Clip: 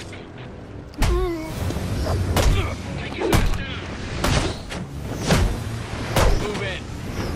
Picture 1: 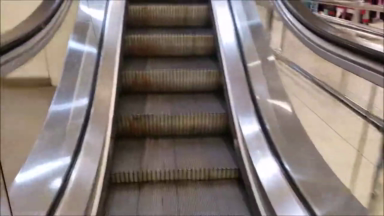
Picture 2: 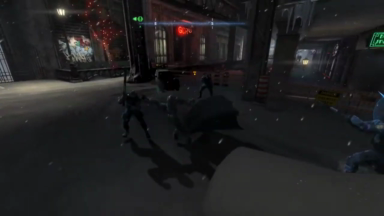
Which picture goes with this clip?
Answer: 2